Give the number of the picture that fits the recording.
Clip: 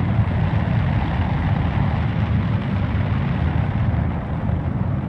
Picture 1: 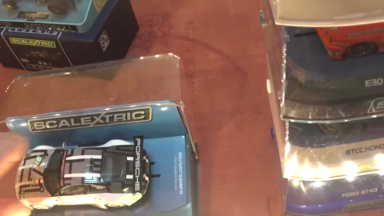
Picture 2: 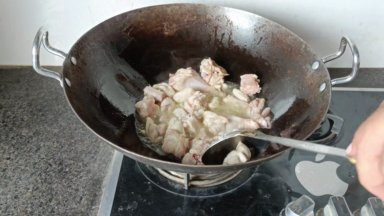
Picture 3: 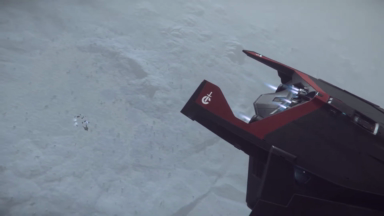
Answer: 3